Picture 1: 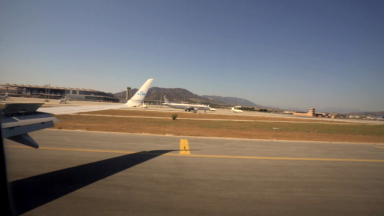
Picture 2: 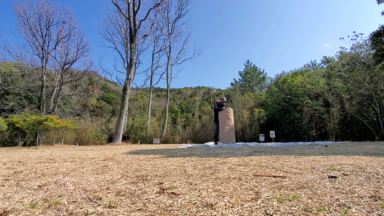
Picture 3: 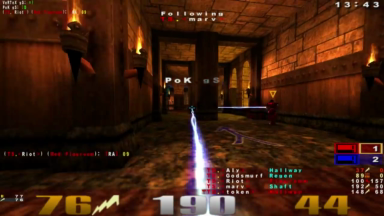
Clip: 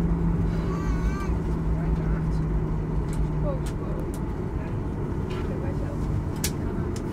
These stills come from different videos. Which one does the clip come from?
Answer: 1